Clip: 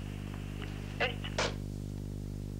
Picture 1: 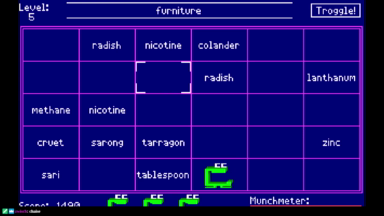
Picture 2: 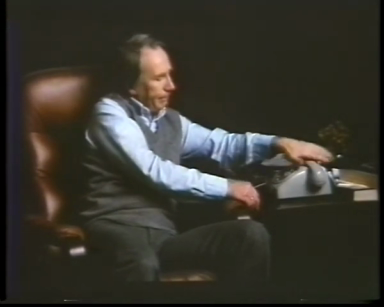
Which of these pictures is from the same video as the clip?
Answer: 2